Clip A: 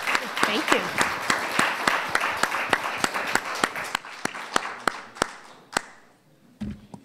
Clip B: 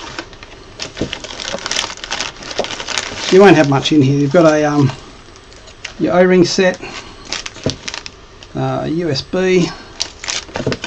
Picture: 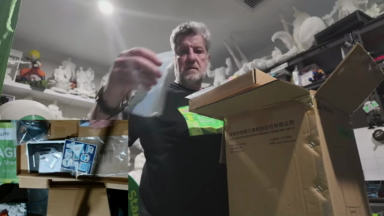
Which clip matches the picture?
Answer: B